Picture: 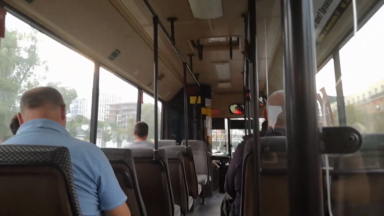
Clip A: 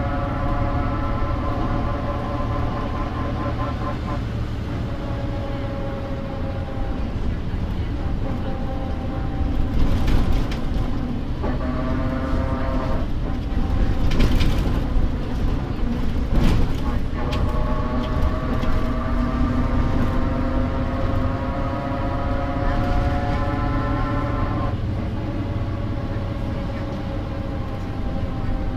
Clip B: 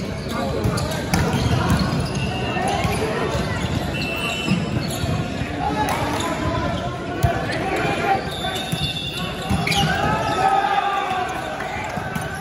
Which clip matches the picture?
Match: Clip A